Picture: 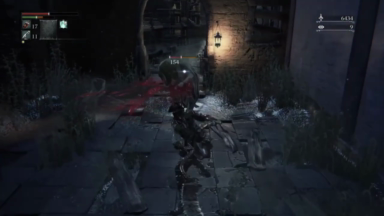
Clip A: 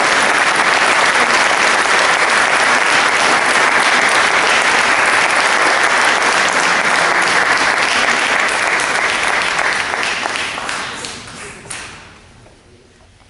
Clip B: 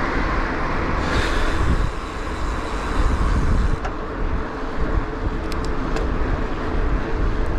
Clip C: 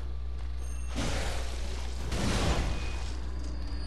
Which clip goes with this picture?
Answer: C